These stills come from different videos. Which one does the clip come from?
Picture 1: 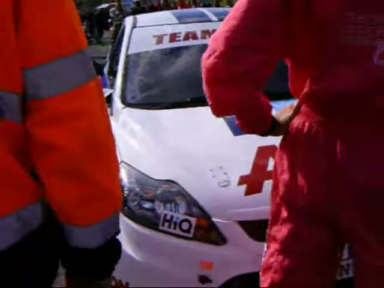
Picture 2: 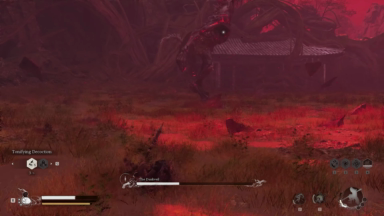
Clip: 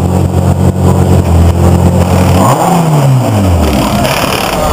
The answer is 1